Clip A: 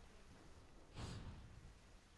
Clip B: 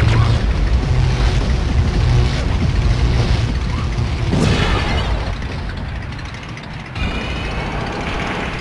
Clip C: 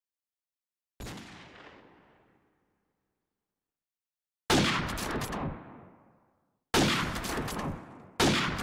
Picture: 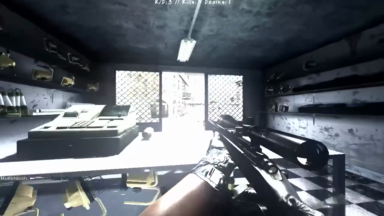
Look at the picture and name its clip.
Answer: C